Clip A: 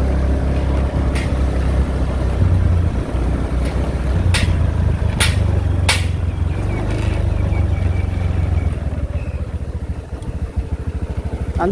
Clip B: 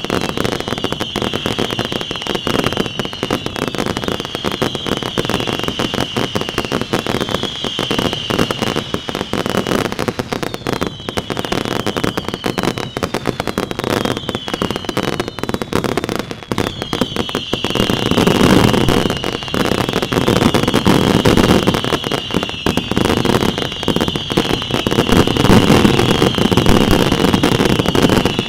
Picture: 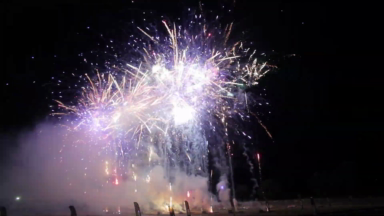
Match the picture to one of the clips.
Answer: B